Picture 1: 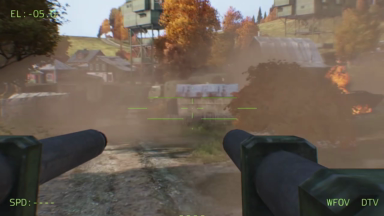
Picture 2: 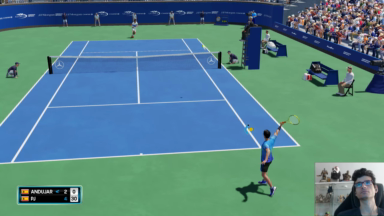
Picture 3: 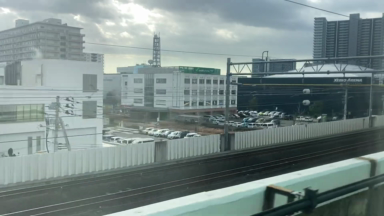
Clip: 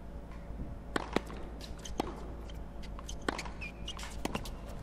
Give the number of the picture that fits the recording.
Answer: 2